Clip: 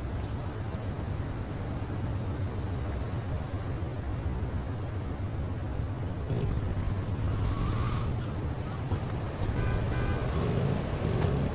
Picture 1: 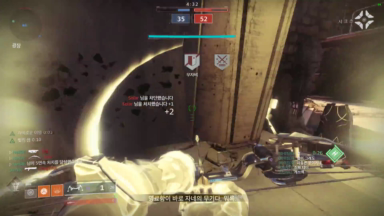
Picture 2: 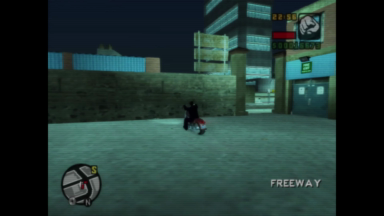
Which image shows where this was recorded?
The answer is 2